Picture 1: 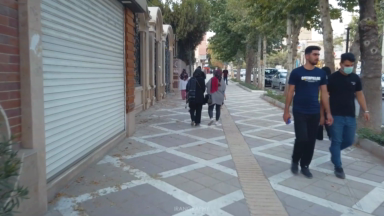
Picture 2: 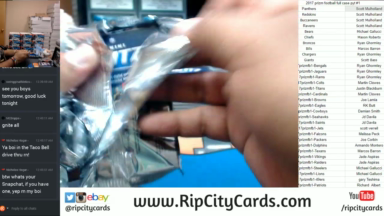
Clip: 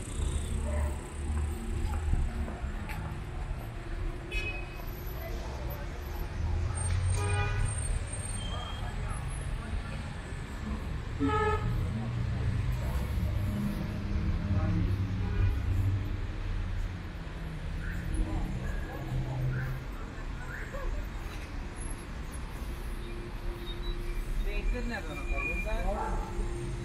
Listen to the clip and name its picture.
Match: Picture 1